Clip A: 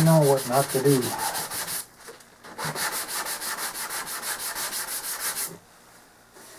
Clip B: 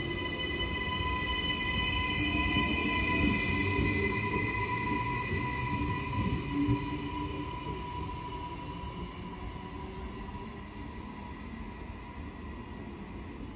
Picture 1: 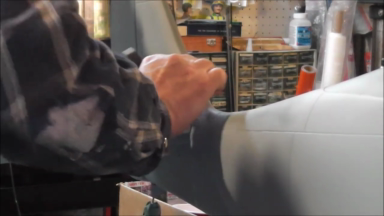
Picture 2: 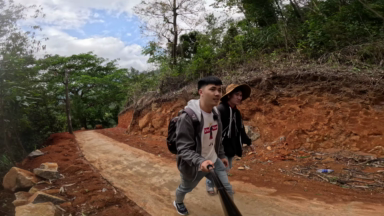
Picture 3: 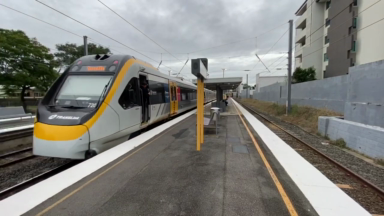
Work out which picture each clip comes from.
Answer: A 1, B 3